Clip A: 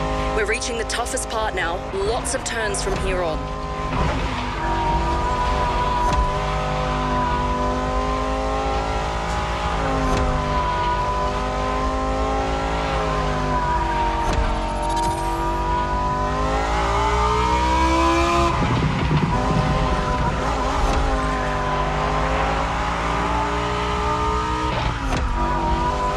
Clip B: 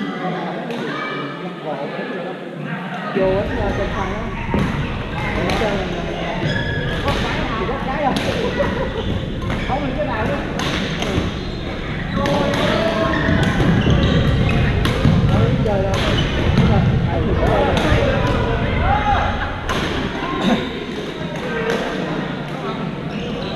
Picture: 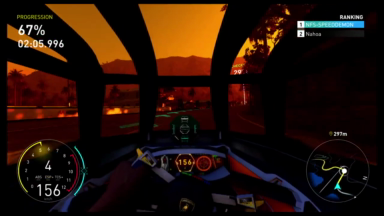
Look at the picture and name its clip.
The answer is A